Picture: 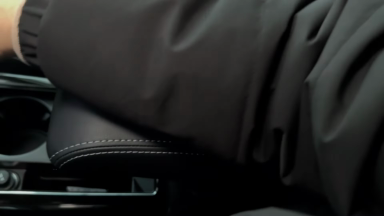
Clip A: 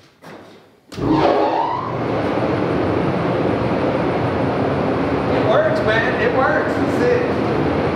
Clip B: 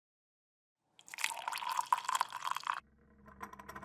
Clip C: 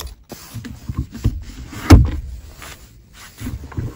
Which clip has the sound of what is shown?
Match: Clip C